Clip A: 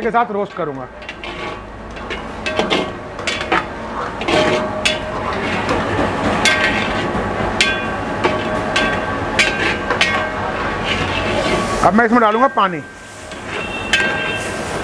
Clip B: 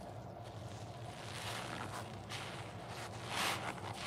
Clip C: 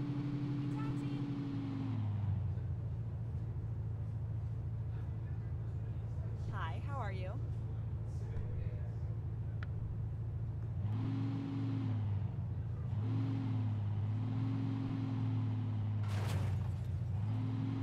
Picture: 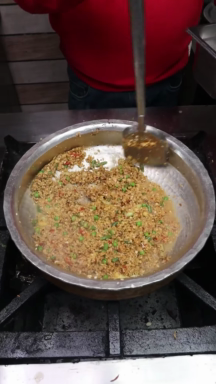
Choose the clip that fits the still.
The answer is A